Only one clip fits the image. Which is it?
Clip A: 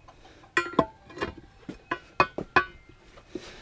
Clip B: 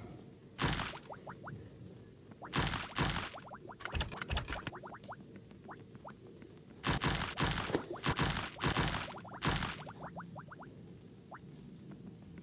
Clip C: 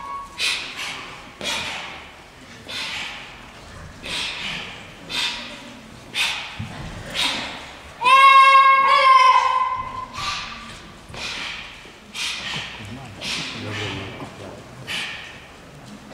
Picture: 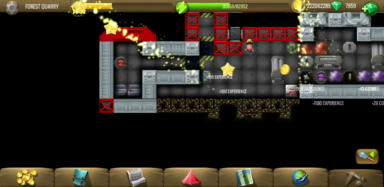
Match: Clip B